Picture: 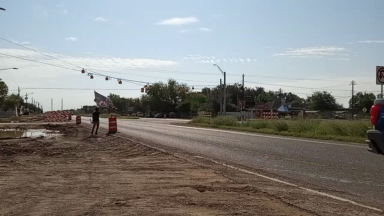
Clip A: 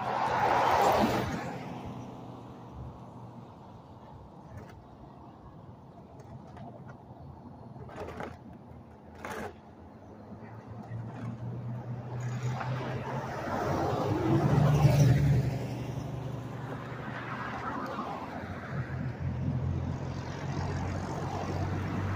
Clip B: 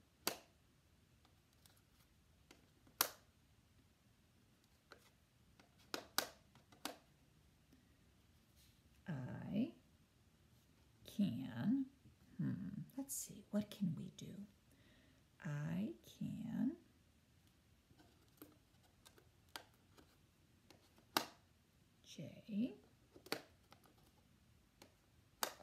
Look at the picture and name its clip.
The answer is A